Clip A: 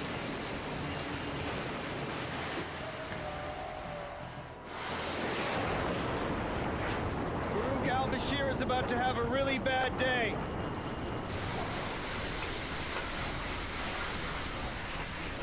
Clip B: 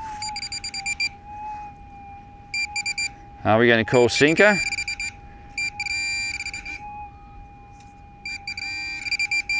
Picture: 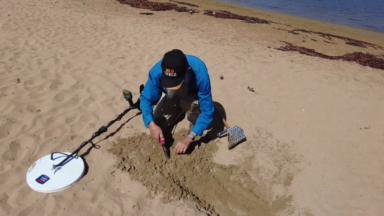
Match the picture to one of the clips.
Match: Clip B